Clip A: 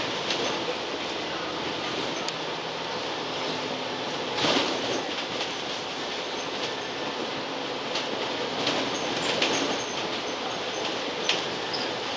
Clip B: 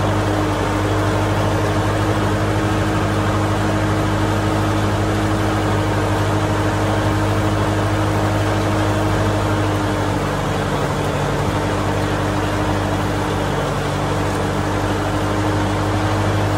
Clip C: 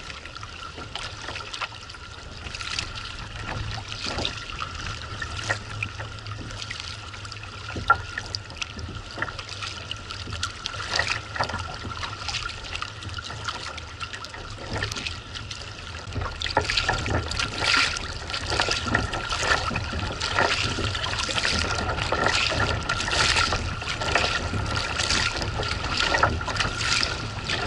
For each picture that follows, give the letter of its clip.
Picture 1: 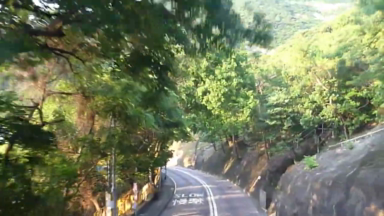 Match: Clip A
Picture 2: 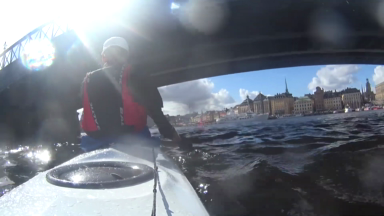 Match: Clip C